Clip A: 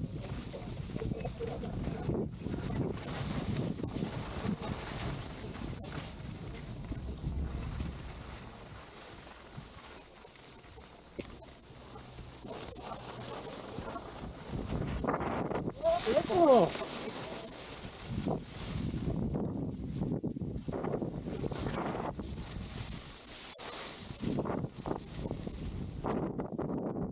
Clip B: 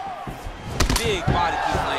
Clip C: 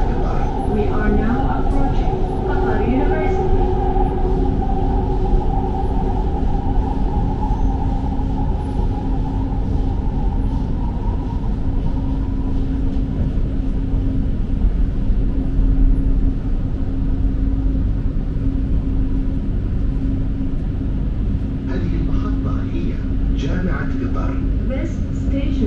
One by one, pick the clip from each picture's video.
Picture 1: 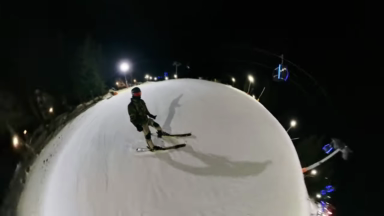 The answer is A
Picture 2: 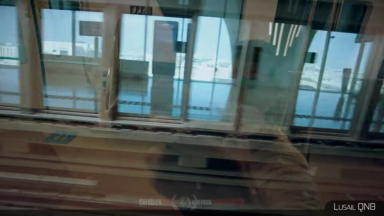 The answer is C